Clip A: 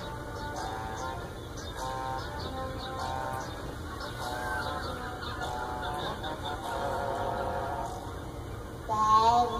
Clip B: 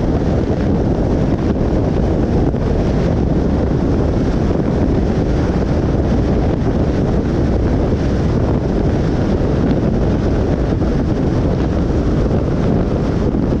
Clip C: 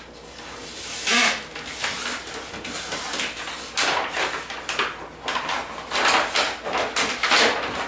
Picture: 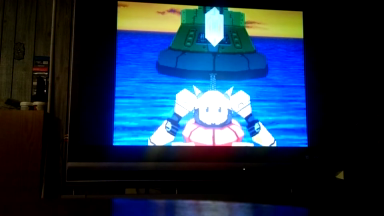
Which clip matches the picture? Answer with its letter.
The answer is A